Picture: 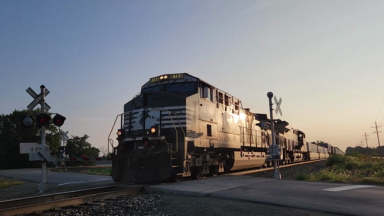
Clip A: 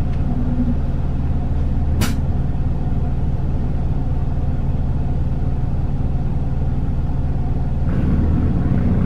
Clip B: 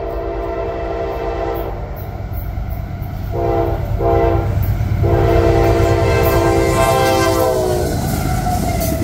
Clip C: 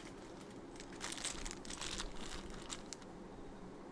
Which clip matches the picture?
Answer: B